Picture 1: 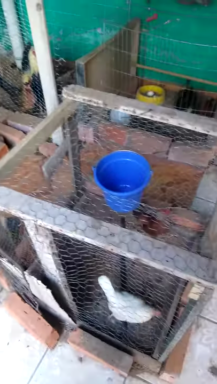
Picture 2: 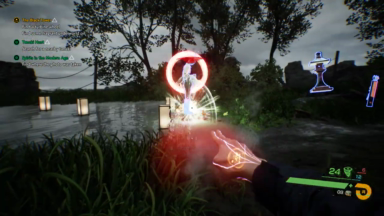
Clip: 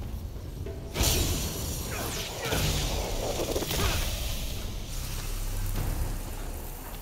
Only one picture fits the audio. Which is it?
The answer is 2